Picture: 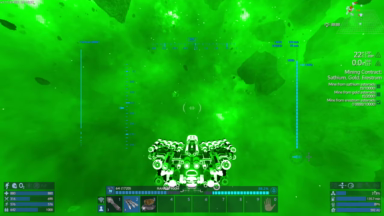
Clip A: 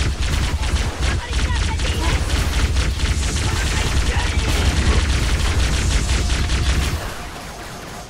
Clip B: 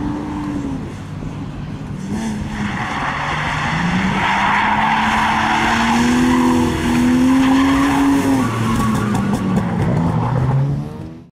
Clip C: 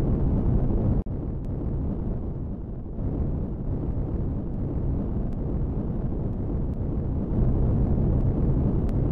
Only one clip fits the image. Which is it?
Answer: C